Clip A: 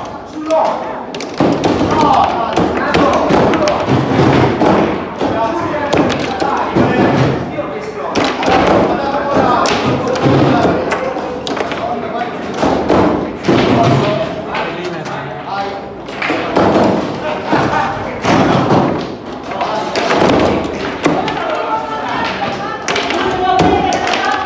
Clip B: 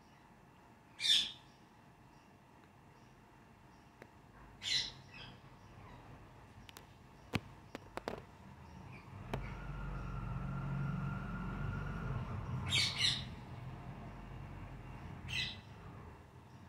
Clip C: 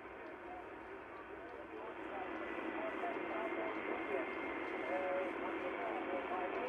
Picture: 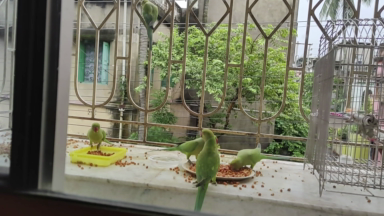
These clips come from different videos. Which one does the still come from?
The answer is B